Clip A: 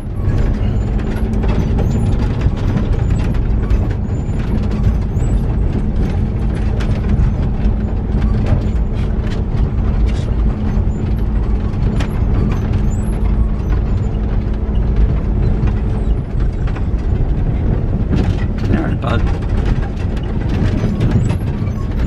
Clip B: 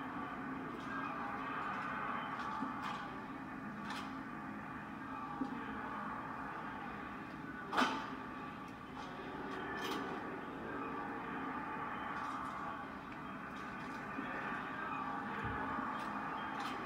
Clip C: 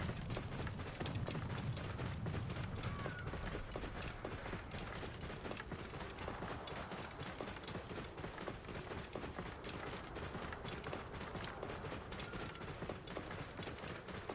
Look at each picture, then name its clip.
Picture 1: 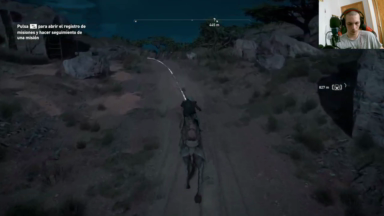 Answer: C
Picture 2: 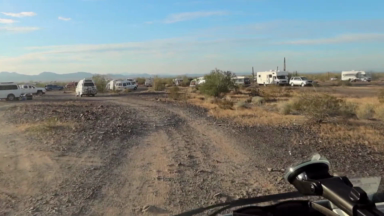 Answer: A